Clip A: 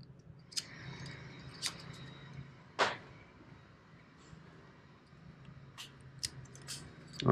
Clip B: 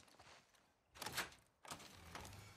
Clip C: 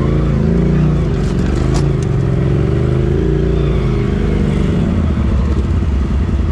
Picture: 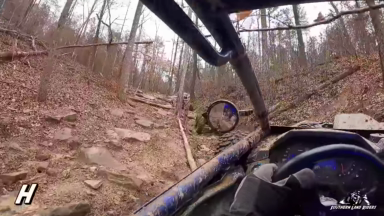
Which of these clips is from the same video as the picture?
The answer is C